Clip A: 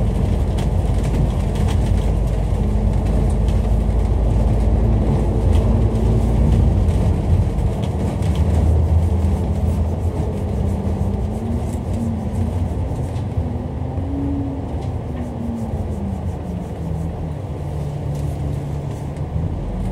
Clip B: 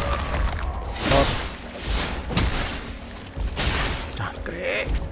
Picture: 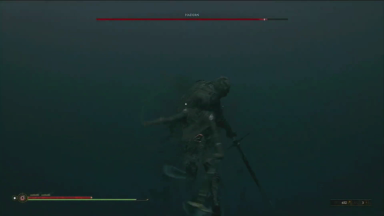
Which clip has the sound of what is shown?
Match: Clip B